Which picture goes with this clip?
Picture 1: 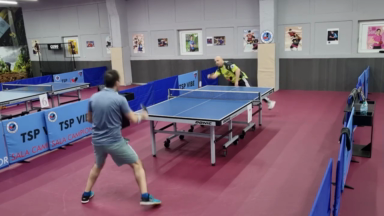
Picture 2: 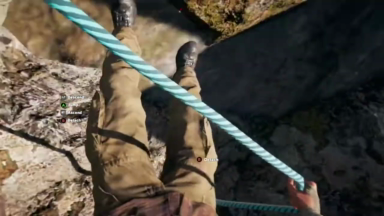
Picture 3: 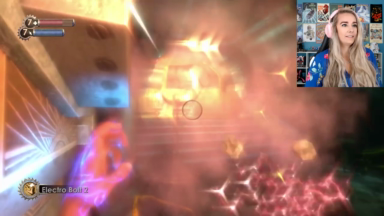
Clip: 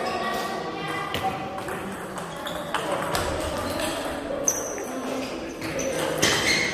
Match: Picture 1